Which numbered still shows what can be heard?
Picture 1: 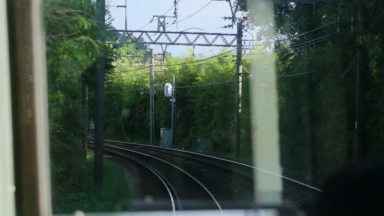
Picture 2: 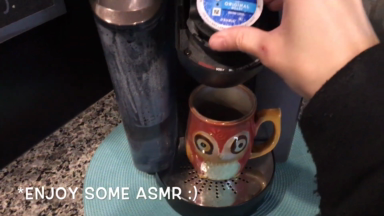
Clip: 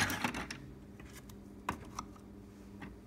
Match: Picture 2